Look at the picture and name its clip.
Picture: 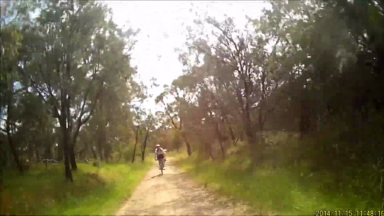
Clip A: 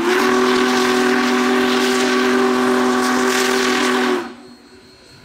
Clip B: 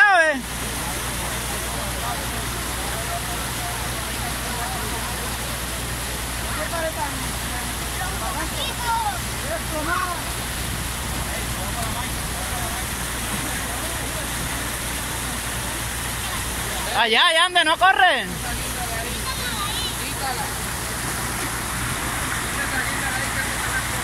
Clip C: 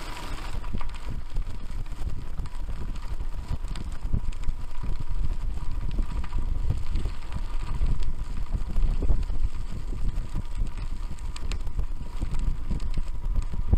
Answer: C